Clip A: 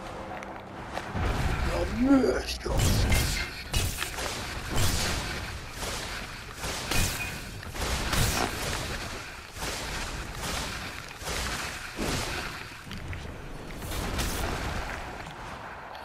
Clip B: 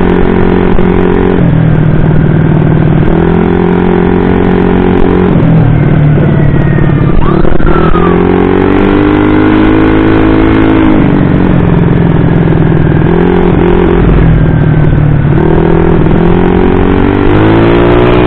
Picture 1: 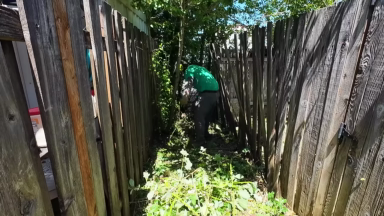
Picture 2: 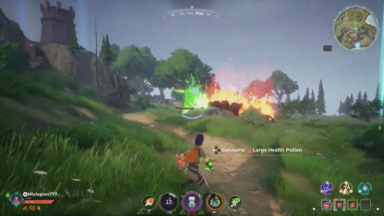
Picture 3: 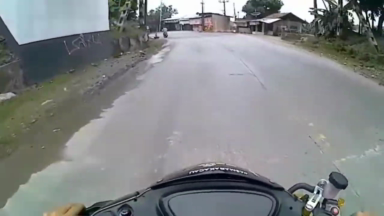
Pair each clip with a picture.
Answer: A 2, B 3